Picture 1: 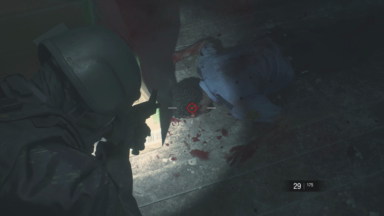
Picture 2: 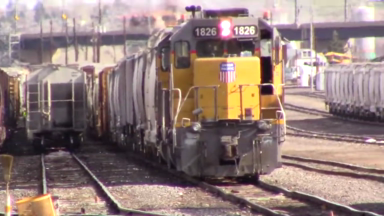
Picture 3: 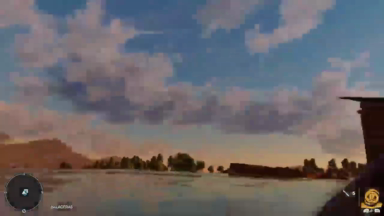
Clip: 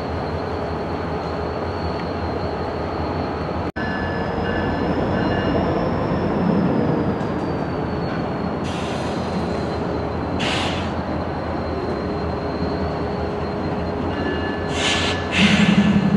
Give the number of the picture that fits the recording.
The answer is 2